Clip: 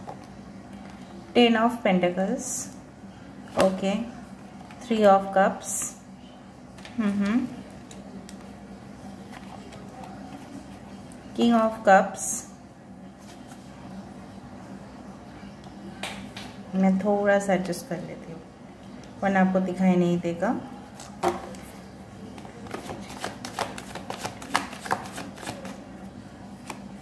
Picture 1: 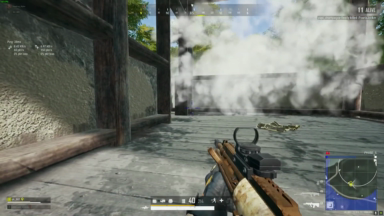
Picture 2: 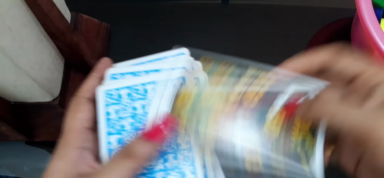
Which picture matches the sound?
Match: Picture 2